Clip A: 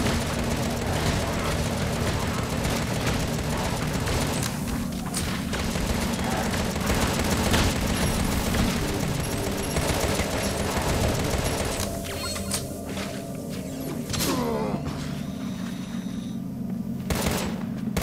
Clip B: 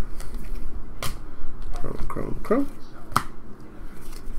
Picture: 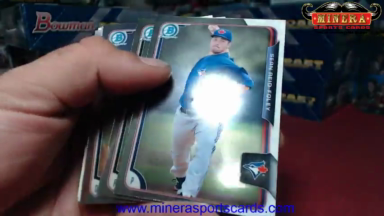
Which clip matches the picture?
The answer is B